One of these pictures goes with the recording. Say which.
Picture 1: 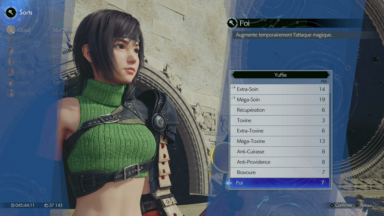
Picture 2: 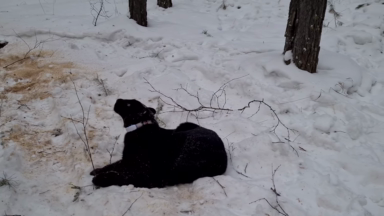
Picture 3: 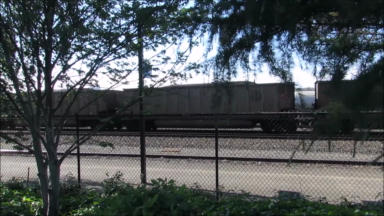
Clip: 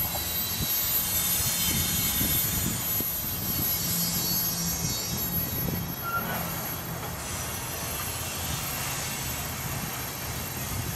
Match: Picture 3